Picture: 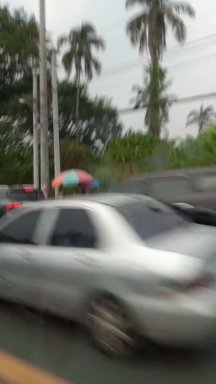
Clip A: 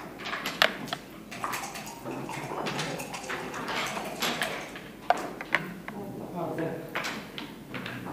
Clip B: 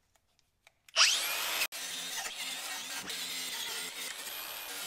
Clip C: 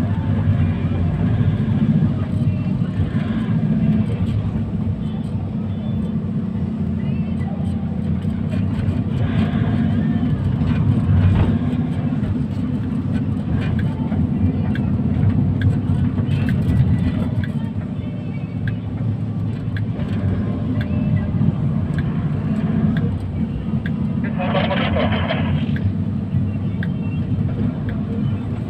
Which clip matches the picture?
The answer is C